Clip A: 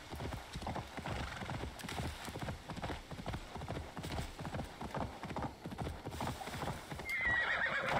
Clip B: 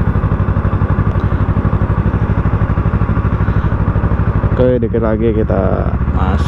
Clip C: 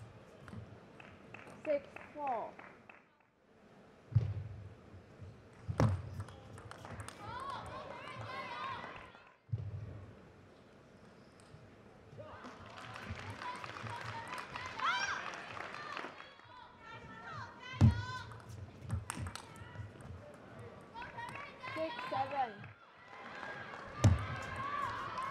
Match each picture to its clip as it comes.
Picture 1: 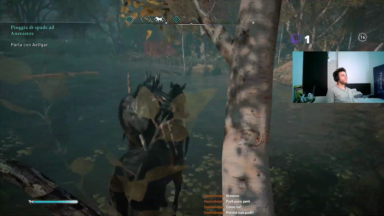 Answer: A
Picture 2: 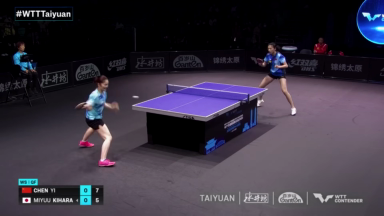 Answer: C